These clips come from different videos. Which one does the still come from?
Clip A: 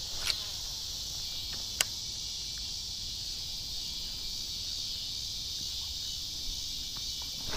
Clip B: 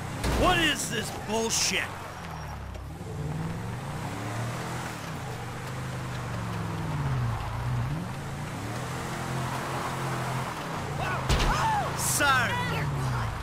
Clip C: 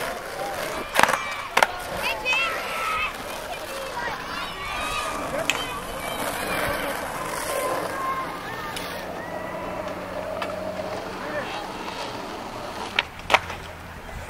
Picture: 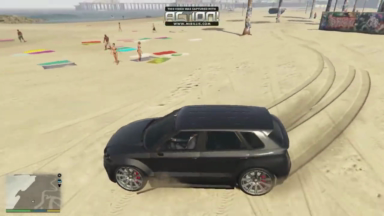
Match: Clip B